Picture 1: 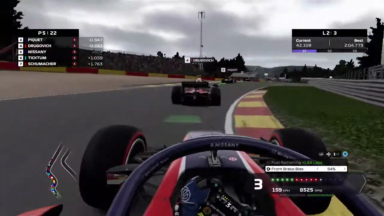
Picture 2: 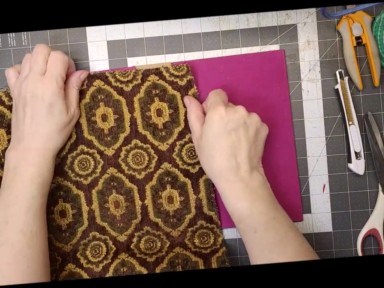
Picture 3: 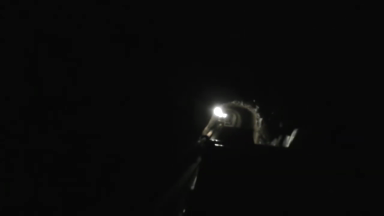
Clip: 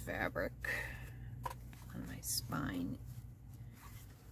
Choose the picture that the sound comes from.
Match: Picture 2